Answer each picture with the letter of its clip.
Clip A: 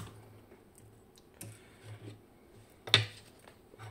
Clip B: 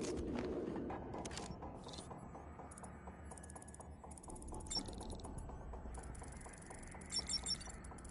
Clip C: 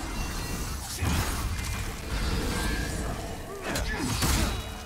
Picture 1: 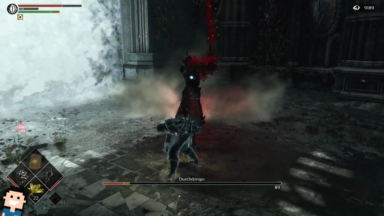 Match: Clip C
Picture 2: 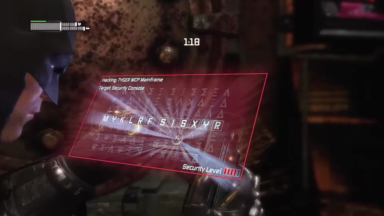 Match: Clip B